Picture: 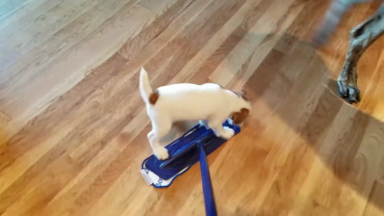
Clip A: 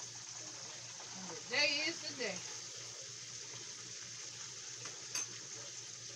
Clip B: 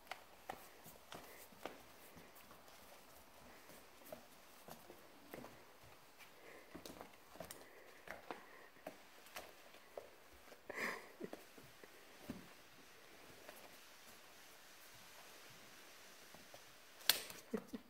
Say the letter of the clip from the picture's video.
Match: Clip B